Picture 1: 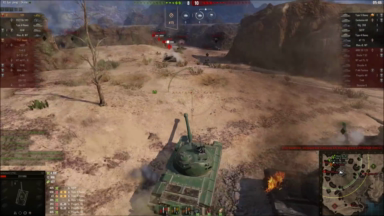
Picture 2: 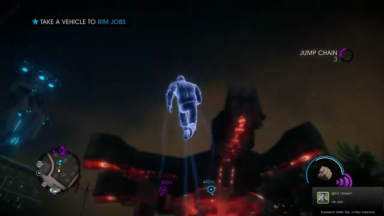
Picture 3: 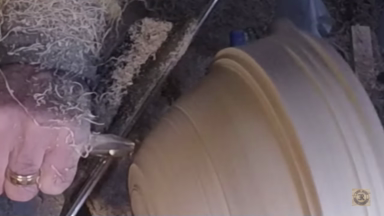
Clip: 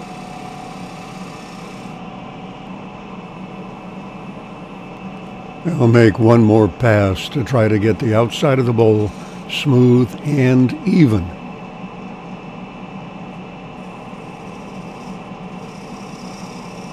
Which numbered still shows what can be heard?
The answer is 3